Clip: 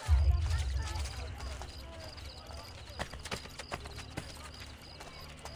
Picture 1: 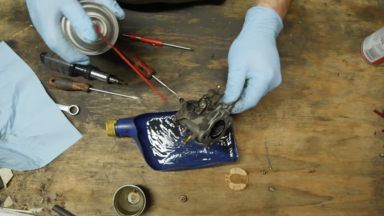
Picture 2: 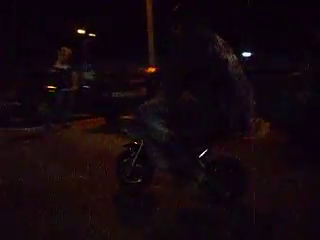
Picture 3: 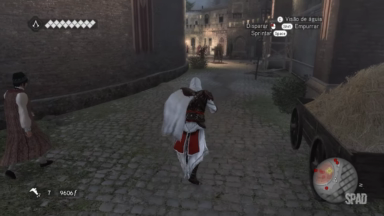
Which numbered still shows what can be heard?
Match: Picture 3